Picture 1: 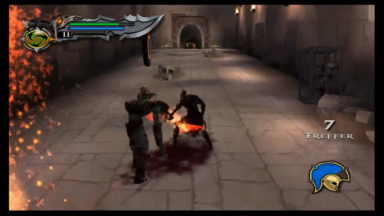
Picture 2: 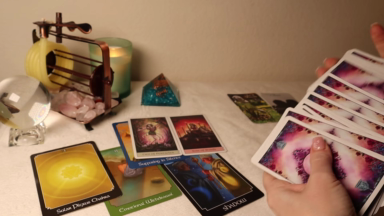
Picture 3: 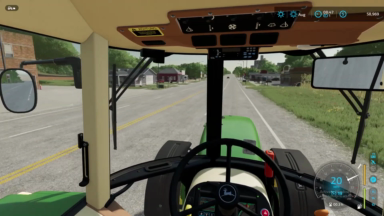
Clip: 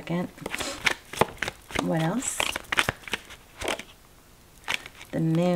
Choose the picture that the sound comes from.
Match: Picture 2